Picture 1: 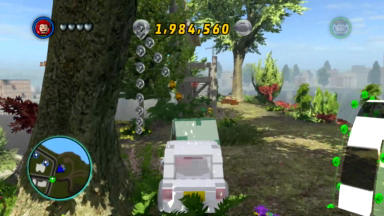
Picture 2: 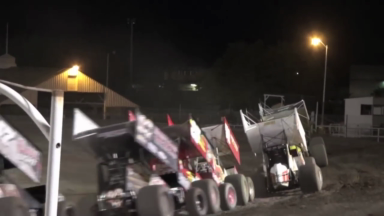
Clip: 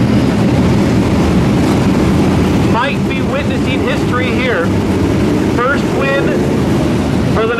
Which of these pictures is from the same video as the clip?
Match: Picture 2